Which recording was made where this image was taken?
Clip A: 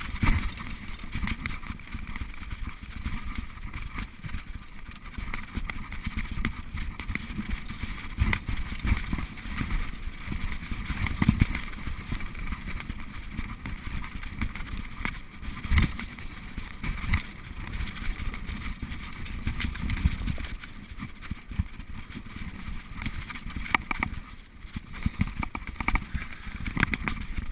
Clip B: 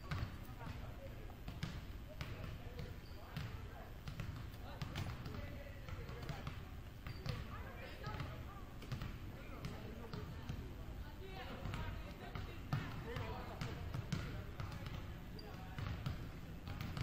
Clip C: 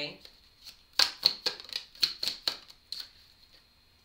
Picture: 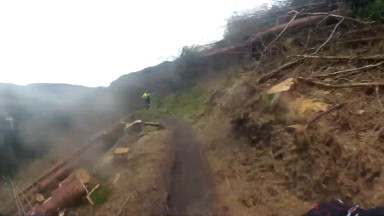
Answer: A